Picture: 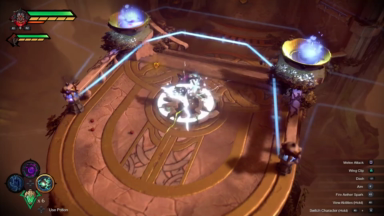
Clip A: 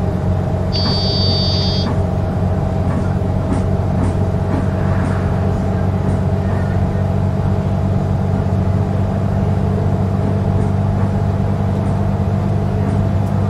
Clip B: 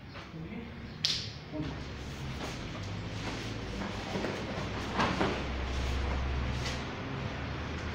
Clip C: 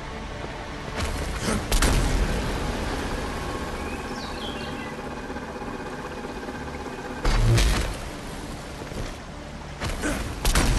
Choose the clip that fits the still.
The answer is C